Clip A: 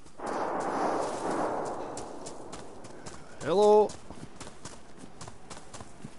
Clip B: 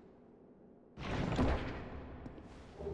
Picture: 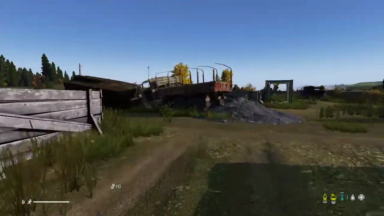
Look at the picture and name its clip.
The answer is A